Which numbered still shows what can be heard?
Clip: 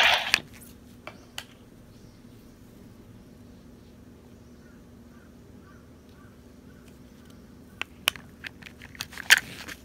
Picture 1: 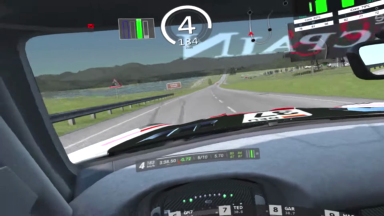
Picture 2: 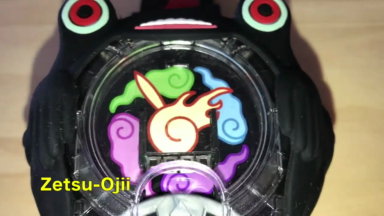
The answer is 2